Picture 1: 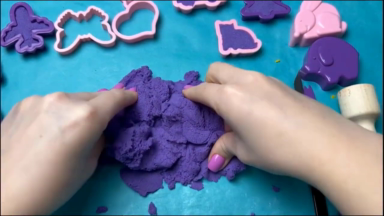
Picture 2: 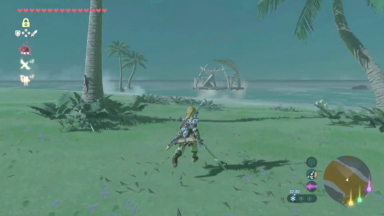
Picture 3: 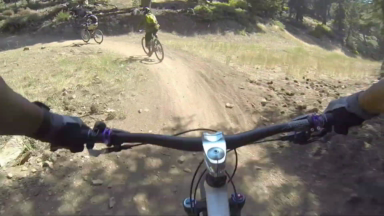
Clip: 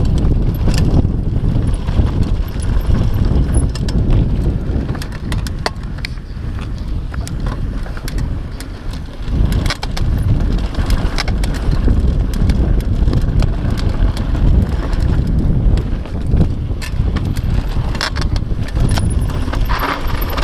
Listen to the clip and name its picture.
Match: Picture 3